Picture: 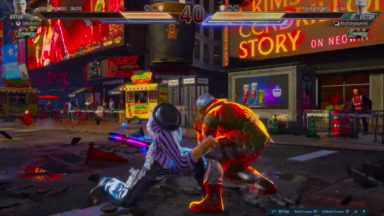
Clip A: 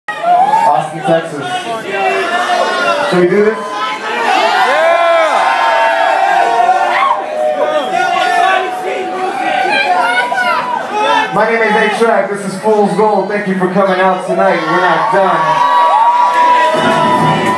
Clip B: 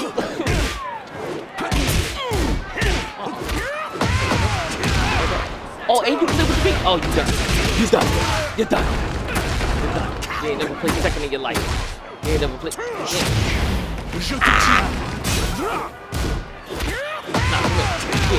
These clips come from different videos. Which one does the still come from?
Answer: B